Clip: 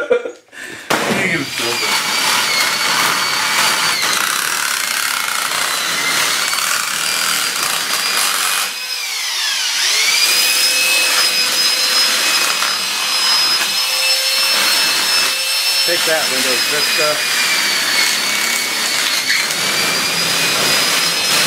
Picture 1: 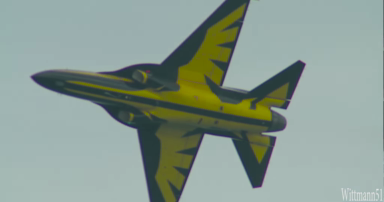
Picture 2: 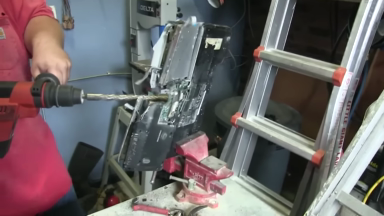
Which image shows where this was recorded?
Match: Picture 2